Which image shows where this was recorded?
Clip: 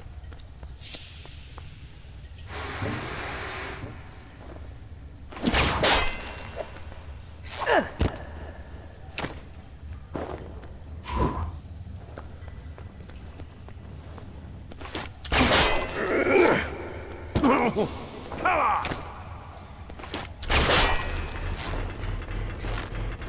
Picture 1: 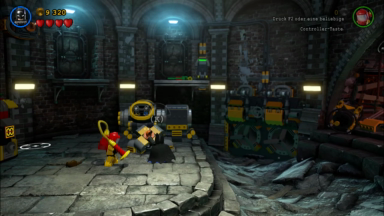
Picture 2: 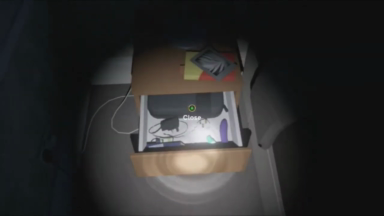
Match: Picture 1